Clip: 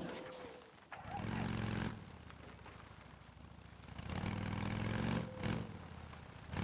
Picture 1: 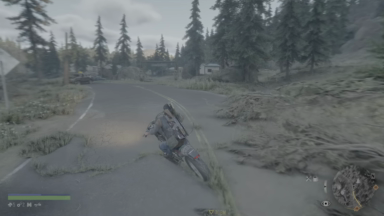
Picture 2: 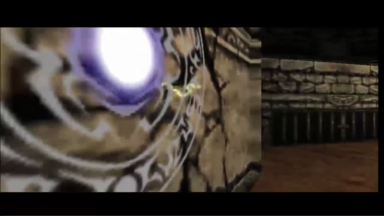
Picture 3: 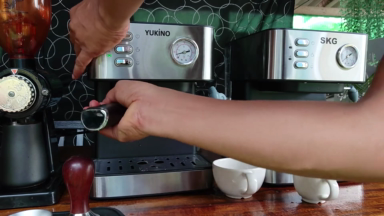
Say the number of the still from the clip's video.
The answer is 1